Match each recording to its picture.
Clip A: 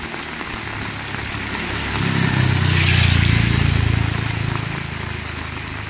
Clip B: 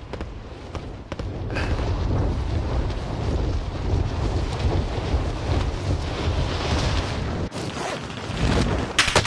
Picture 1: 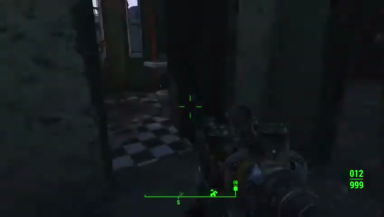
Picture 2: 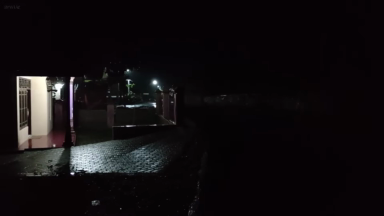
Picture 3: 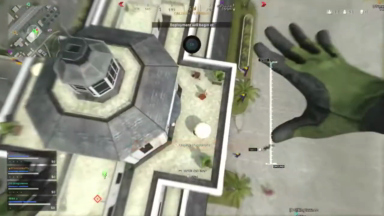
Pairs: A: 2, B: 3